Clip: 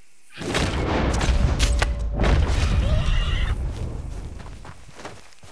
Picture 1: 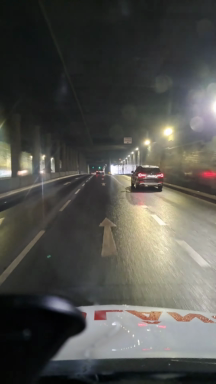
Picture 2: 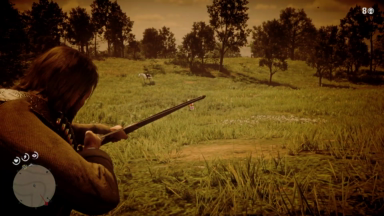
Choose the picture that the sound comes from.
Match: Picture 2